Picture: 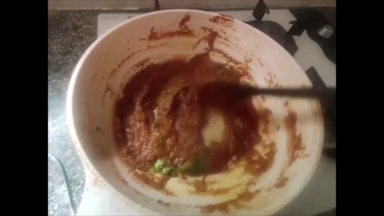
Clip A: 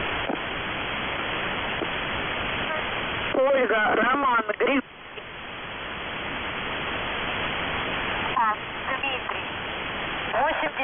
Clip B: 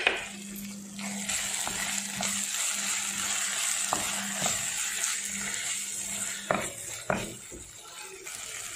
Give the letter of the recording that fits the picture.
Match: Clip B